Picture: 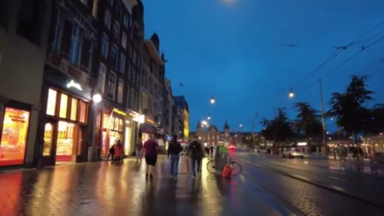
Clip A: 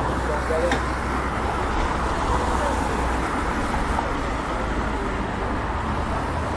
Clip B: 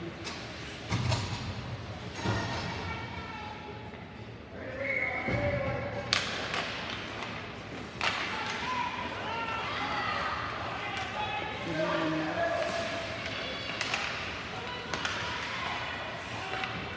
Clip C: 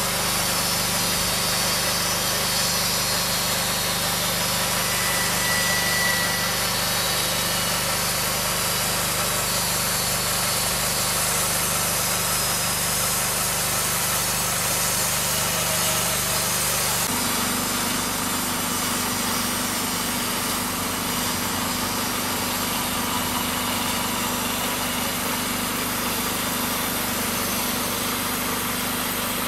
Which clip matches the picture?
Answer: A